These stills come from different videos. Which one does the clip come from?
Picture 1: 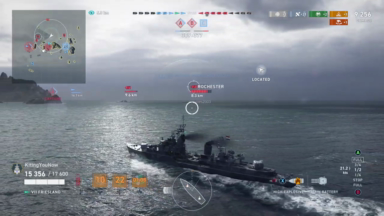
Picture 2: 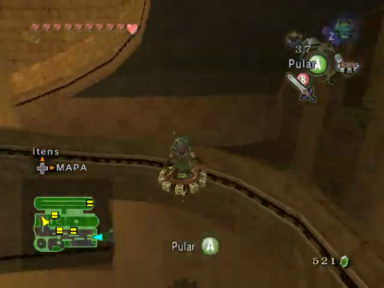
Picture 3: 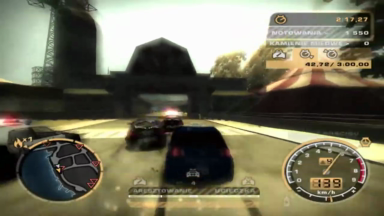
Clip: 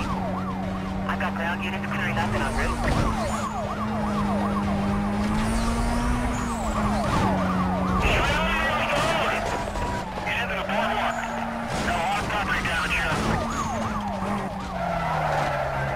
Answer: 3